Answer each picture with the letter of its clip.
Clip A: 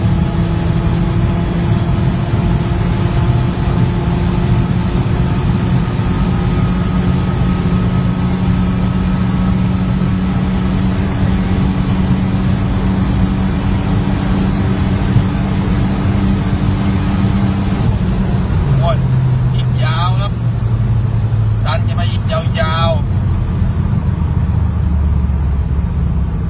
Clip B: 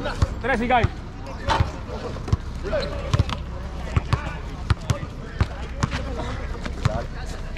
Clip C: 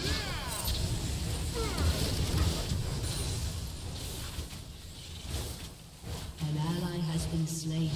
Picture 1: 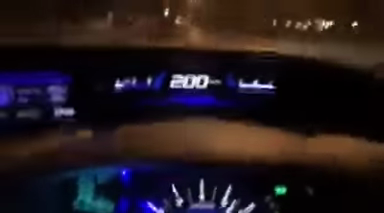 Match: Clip A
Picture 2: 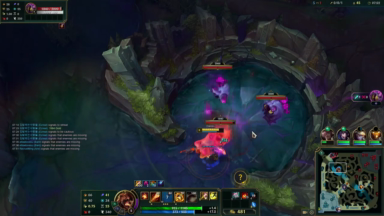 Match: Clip C